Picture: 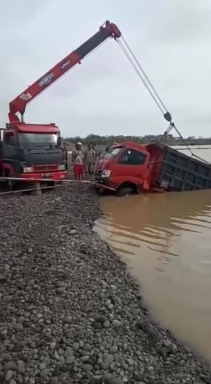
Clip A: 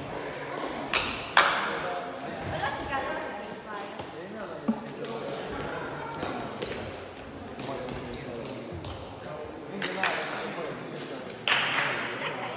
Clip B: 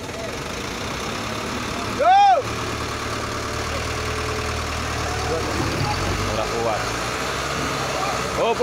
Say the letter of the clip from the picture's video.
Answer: B